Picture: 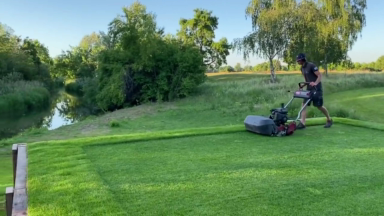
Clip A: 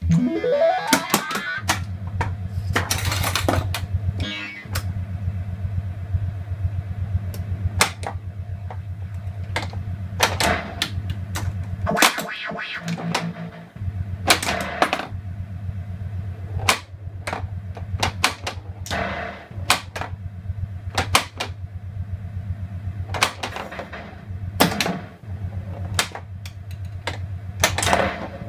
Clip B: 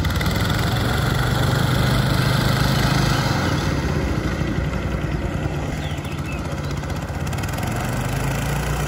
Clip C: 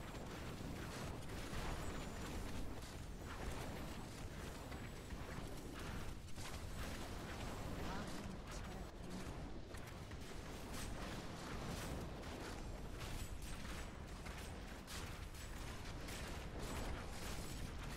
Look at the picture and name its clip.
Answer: B